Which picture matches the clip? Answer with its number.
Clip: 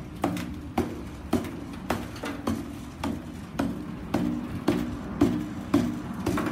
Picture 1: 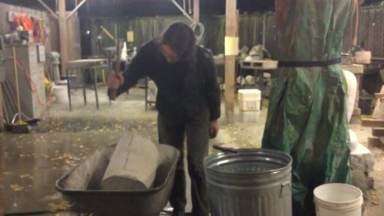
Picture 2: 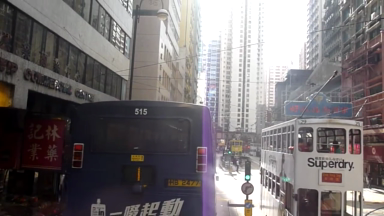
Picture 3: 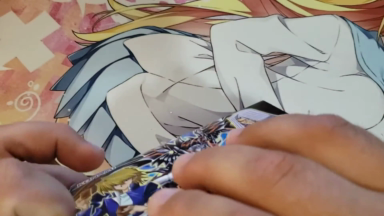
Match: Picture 1